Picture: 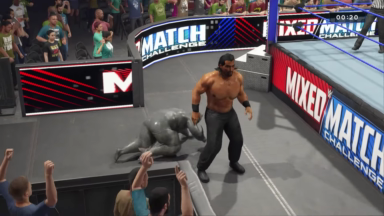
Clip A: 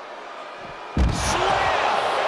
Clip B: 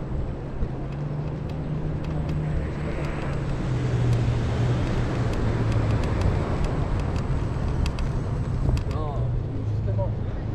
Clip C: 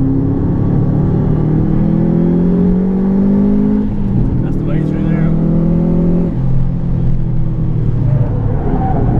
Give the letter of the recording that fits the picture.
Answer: A